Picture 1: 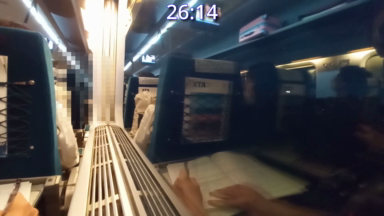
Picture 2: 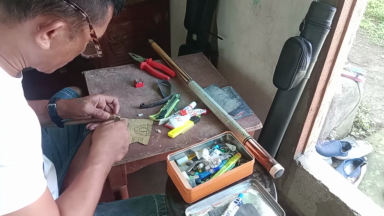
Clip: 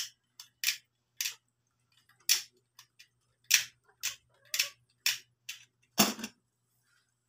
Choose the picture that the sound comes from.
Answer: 2